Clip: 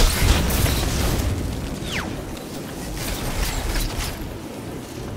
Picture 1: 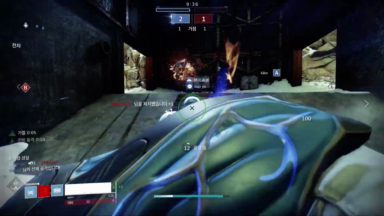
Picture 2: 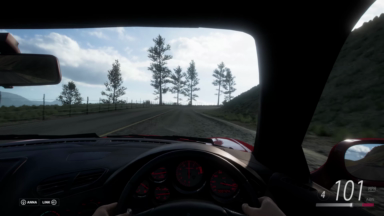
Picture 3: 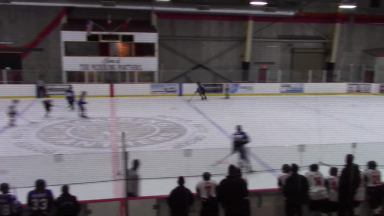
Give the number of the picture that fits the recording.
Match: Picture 1